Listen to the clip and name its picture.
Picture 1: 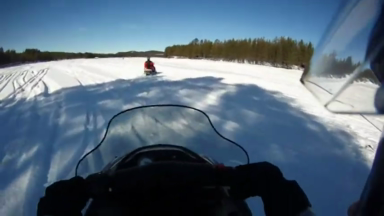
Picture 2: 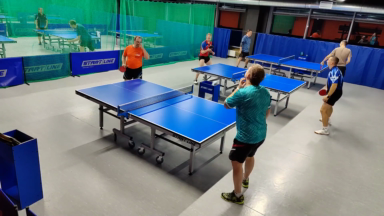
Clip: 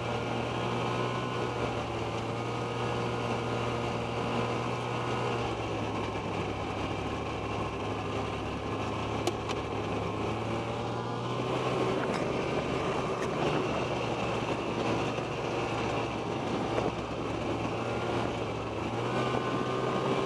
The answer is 1